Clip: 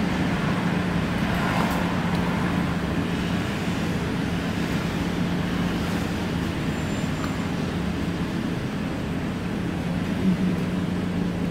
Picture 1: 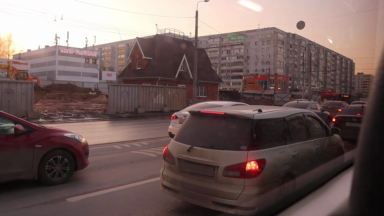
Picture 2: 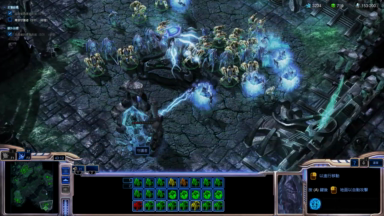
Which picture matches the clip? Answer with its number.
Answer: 1